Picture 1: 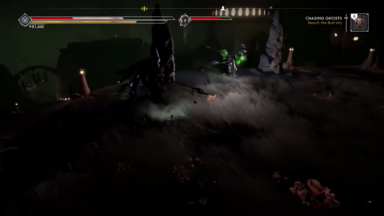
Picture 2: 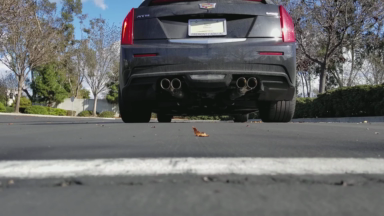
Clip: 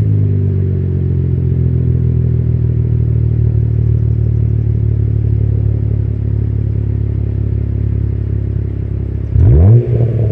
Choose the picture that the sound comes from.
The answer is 2